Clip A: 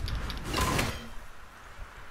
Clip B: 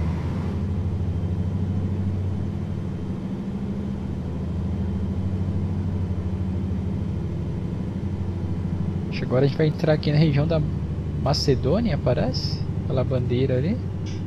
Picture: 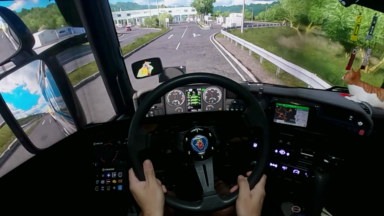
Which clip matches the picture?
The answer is B